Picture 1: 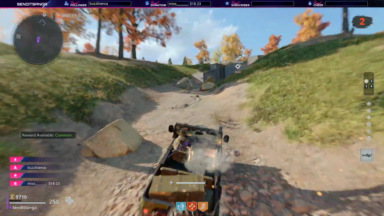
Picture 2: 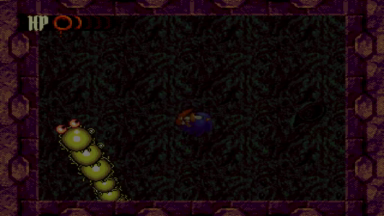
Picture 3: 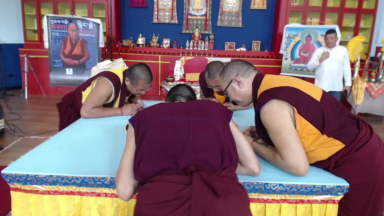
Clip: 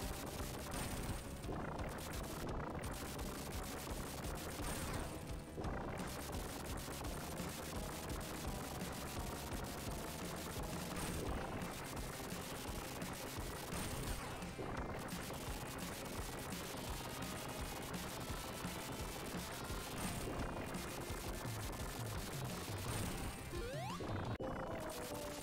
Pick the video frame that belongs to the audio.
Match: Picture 2